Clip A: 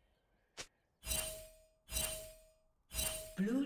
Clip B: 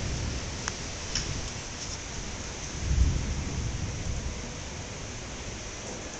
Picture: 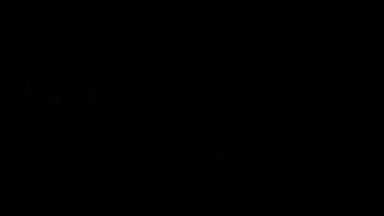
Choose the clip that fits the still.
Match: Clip B